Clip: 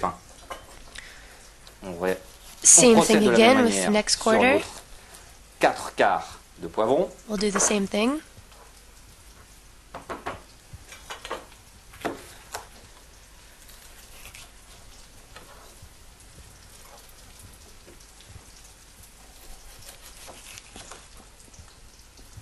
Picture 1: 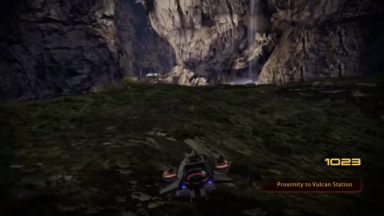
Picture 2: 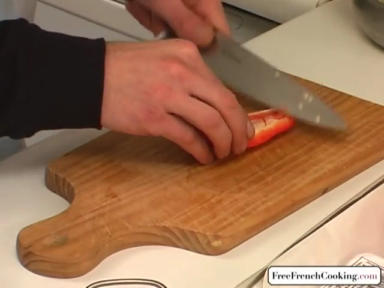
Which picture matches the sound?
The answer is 2